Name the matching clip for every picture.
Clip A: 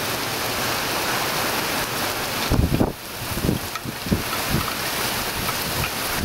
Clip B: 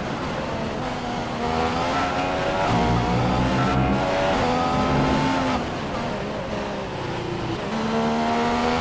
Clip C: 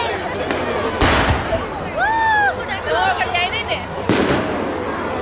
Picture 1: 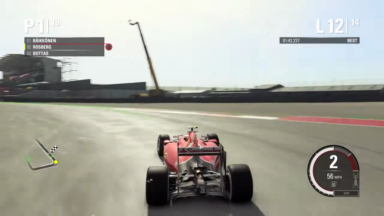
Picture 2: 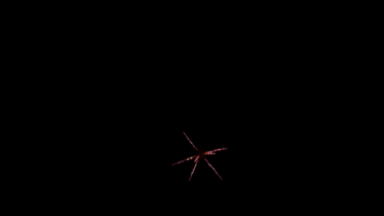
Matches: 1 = B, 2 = C